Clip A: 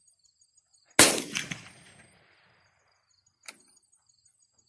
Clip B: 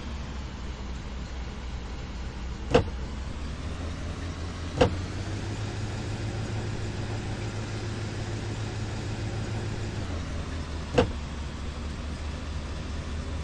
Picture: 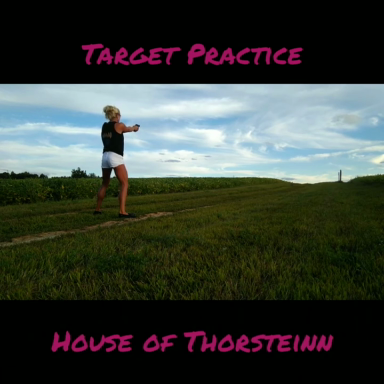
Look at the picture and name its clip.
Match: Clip A